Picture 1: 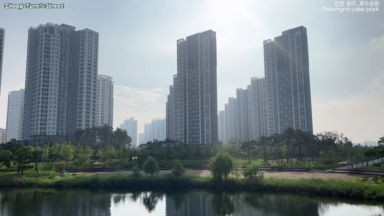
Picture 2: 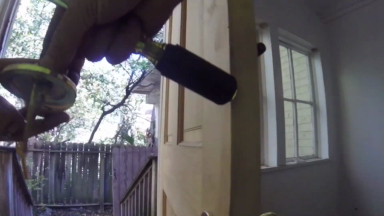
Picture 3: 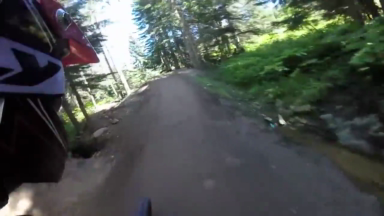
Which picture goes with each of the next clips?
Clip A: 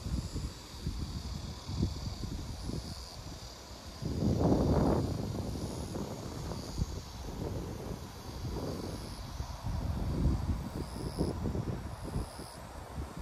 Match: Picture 1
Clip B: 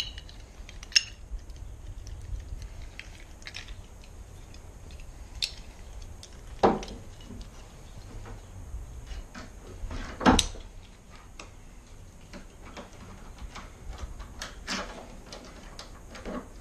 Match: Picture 2